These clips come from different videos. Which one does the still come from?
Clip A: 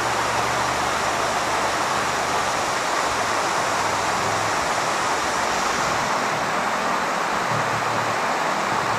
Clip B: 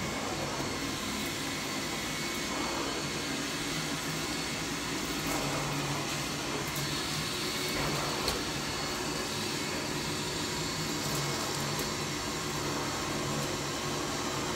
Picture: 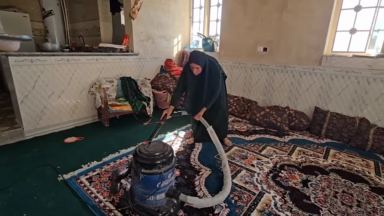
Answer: B